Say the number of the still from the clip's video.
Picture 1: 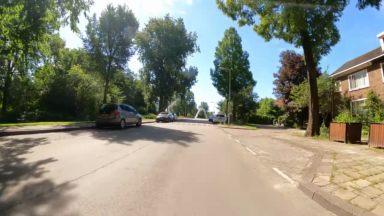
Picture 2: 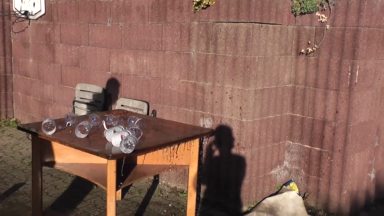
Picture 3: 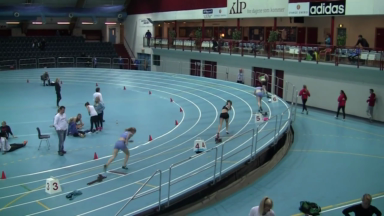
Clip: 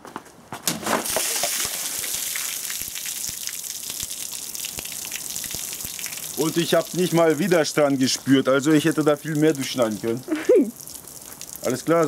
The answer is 2